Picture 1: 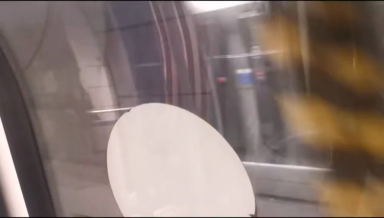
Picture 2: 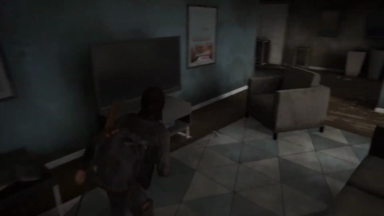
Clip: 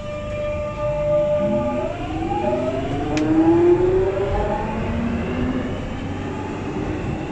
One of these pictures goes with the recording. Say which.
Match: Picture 1